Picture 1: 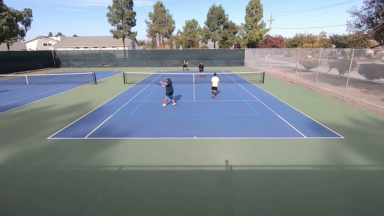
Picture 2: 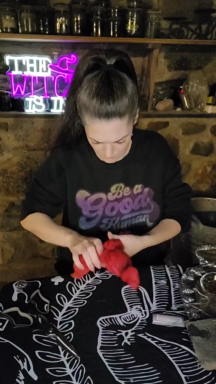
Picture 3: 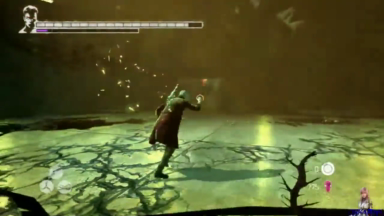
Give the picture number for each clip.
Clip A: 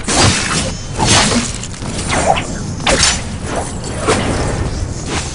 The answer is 3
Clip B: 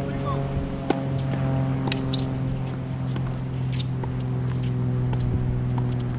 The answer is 1